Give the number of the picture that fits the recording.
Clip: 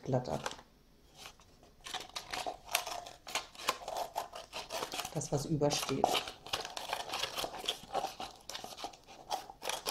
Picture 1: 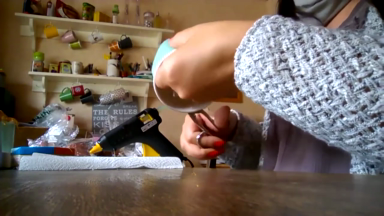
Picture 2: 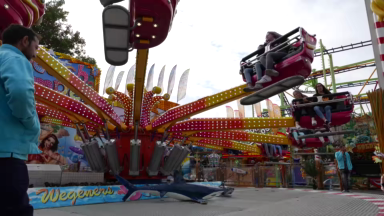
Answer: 1